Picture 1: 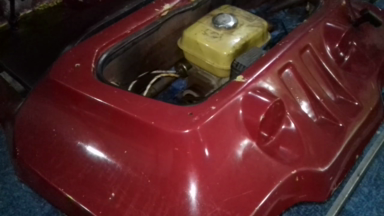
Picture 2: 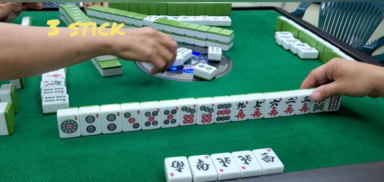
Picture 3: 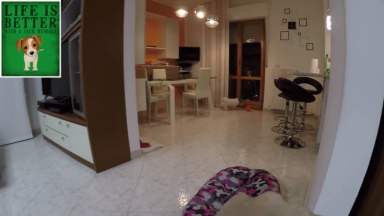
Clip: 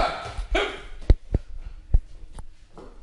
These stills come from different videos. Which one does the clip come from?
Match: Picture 3